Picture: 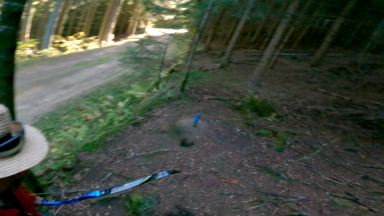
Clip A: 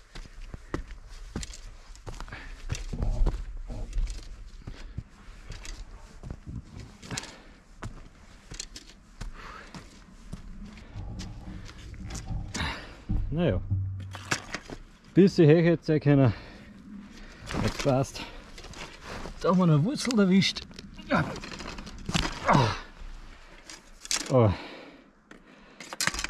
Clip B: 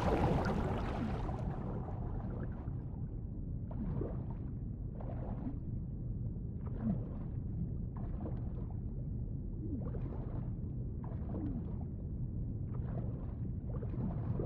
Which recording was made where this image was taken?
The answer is A